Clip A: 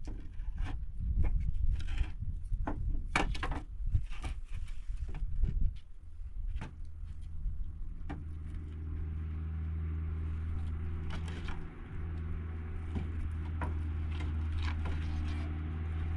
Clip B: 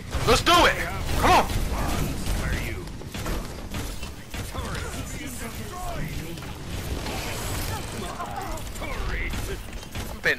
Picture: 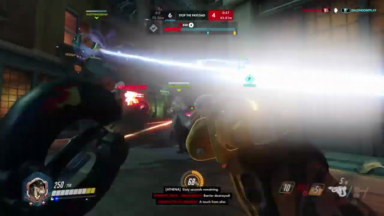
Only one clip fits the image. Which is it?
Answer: B